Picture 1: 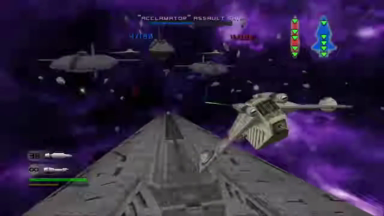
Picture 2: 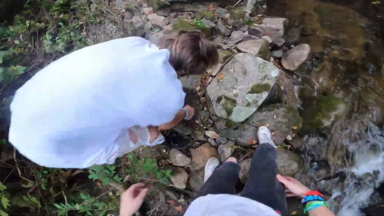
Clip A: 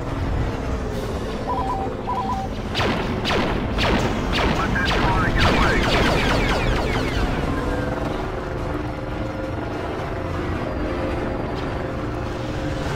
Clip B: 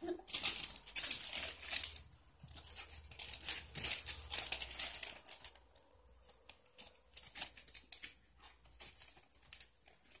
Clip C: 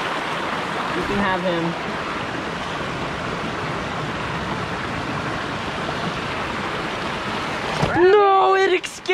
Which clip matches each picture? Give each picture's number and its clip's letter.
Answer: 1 A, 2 C